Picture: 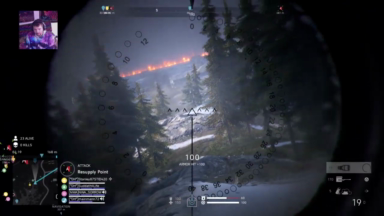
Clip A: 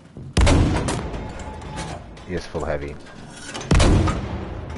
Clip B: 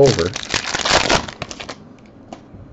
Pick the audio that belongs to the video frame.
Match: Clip A